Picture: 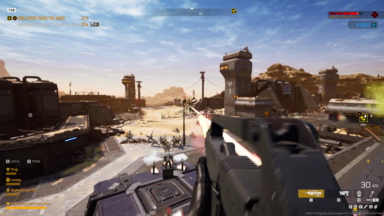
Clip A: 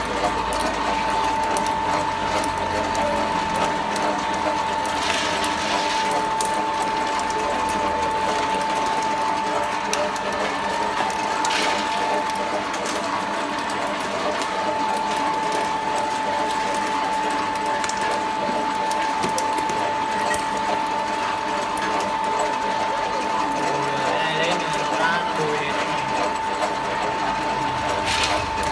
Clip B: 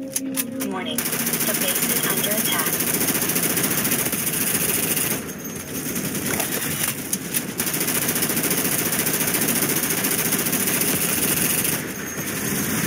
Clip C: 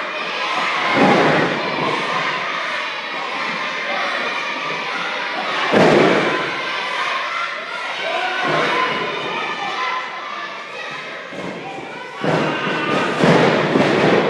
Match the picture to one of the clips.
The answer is B